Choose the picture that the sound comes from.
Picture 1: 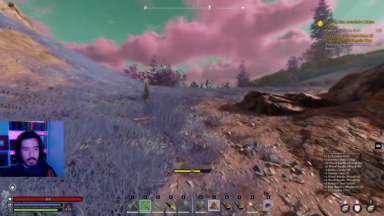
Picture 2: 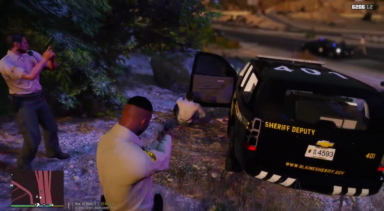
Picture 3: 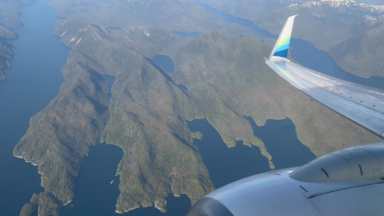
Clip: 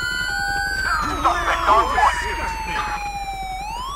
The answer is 2